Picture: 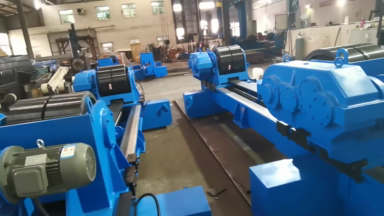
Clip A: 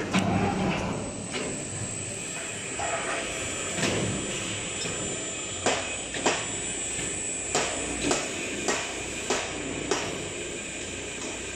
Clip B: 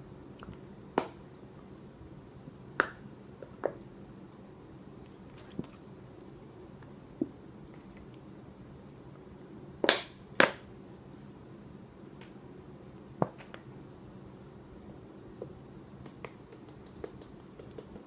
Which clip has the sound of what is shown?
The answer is A